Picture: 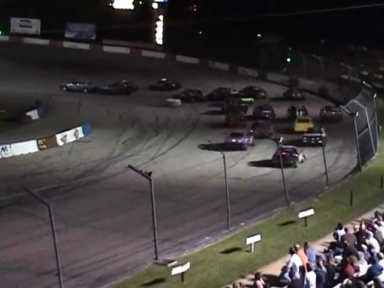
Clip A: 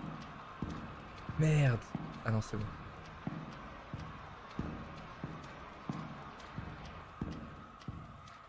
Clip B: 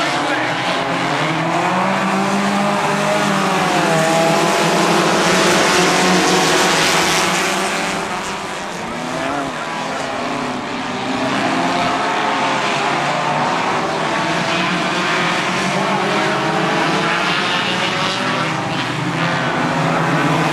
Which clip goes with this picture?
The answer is B